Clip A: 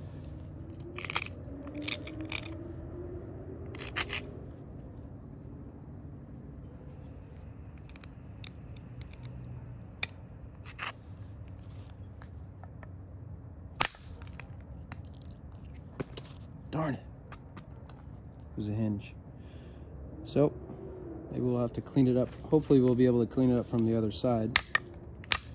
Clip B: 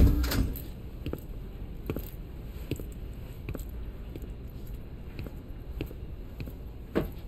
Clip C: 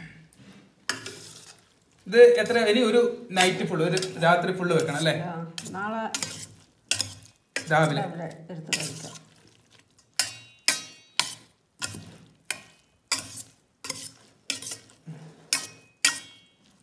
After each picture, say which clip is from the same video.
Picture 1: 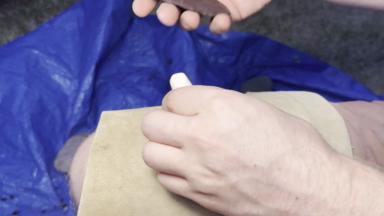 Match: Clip A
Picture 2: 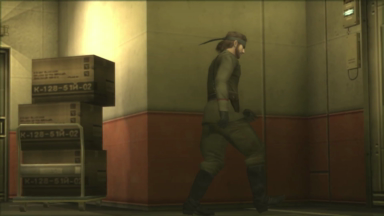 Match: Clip B